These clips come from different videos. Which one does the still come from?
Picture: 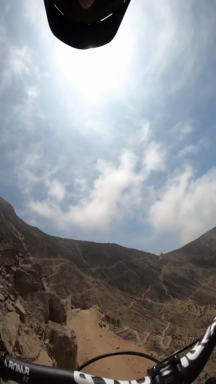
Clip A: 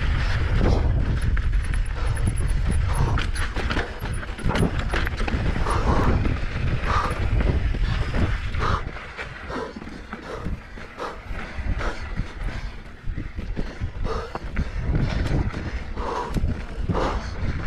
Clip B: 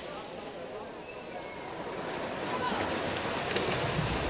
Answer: A